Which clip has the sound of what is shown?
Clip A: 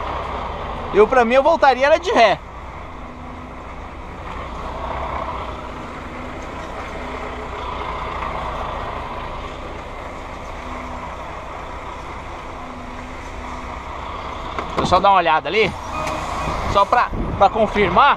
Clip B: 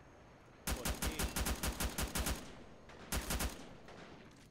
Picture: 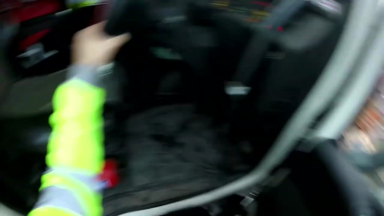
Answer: A